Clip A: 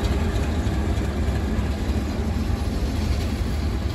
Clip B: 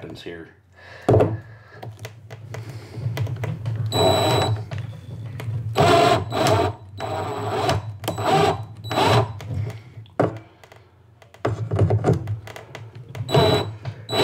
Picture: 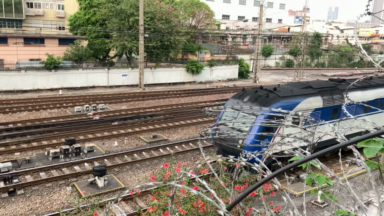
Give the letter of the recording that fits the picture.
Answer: A